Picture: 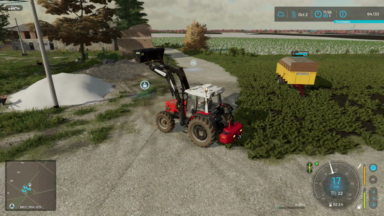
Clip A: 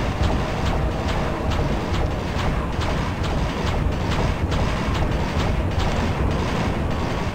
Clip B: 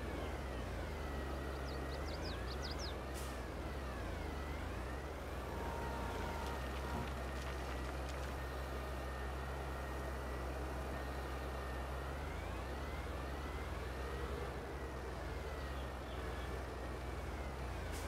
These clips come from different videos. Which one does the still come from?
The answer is B